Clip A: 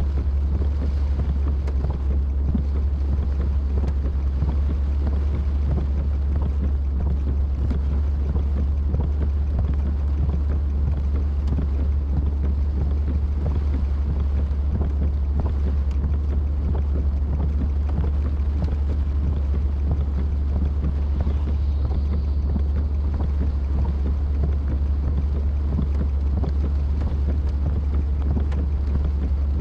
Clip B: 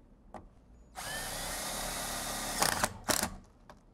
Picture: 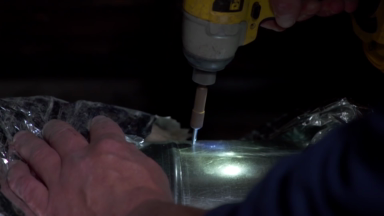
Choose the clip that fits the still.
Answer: B